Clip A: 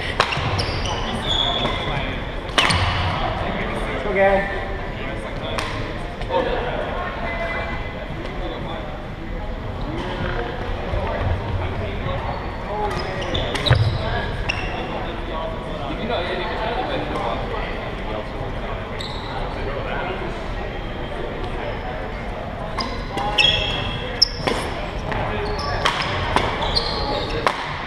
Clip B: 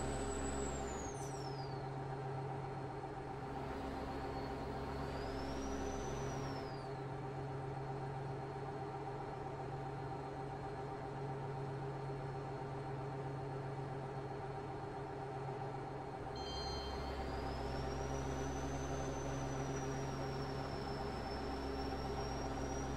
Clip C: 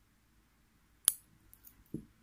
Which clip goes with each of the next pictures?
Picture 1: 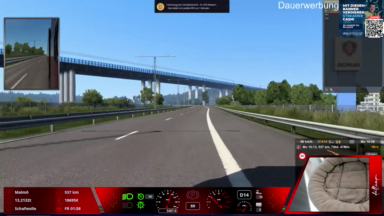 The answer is B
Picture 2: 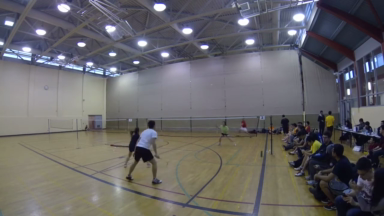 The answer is A